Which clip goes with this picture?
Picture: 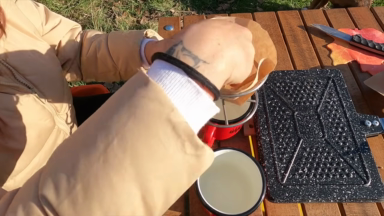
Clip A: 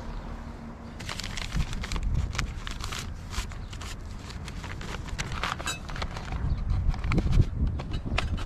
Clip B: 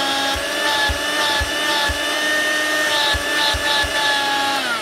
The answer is A